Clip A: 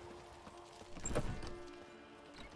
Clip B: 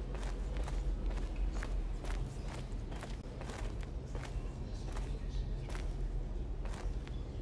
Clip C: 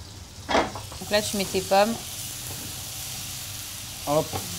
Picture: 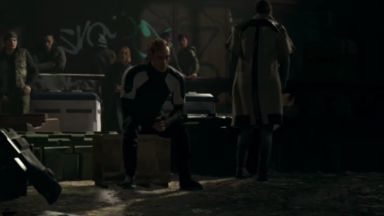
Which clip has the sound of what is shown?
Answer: B